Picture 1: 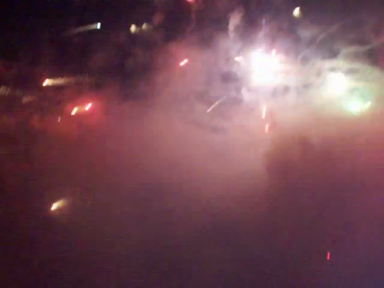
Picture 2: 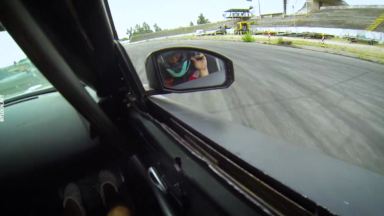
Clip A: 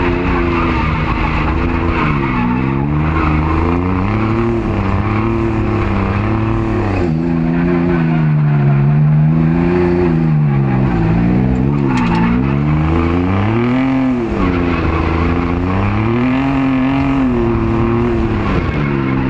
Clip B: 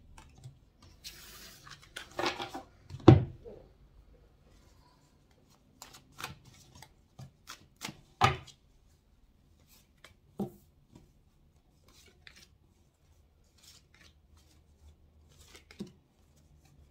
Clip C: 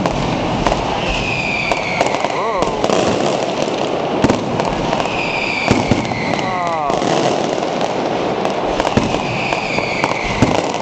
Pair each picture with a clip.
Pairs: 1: C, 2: A